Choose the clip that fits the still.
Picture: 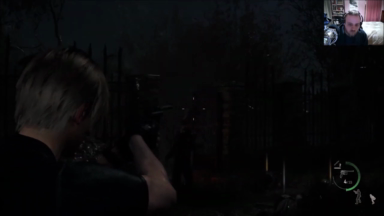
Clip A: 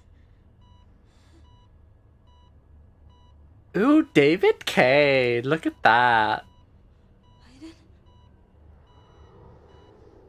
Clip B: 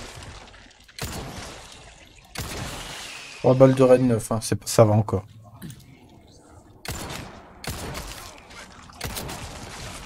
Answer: B